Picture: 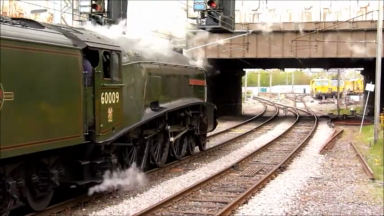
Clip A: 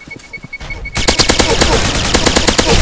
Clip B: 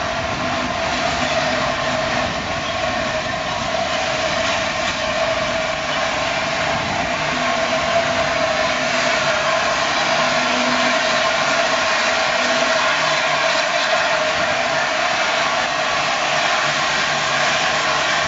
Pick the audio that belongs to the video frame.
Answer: B